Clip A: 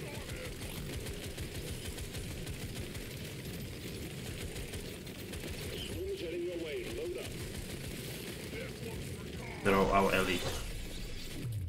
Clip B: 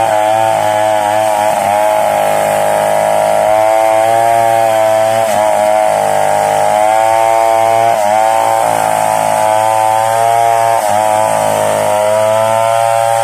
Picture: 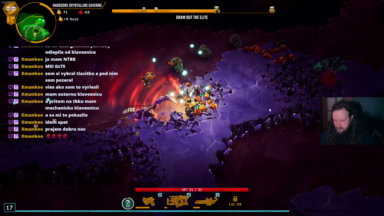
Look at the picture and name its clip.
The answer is A